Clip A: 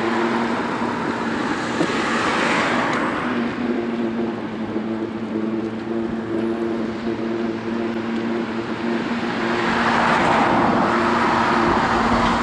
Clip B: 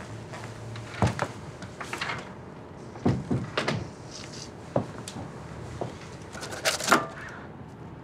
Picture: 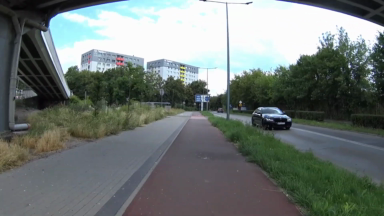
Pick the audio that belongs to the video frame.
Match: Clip A